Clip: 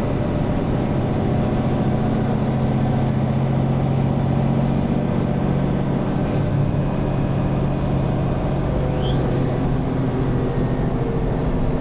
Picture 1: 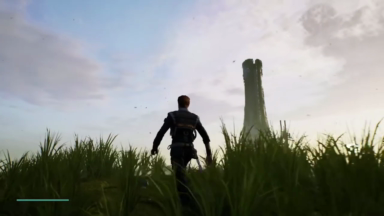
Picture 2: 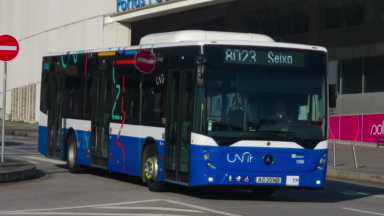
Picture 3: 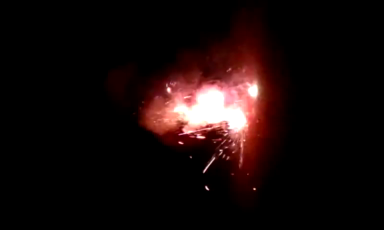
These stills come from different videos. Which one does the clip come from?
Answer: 2